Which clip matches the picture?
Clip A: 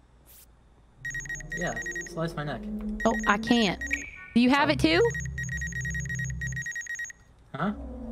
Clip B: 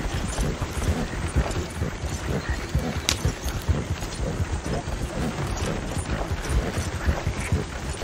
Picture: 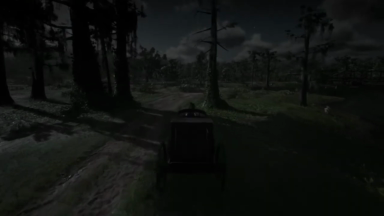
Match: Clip B